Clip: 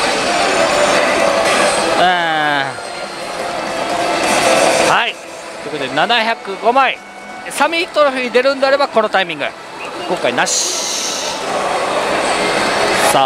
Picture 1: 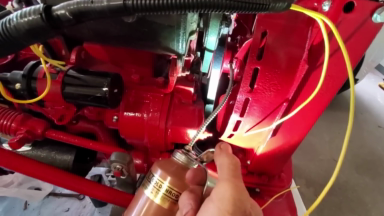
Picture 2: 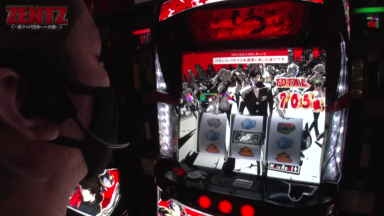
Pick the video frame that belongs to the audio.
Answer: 2